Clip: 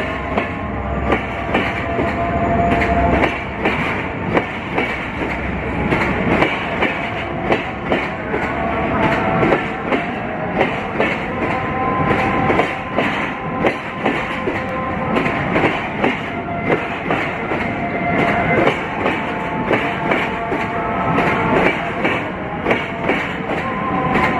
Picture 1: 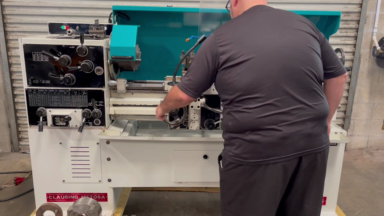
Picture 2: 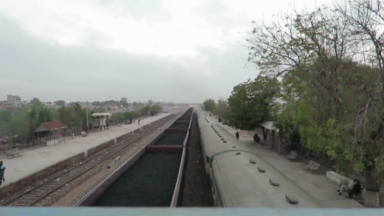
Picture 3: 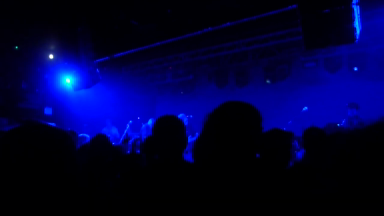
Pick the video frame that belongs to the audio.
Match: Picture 2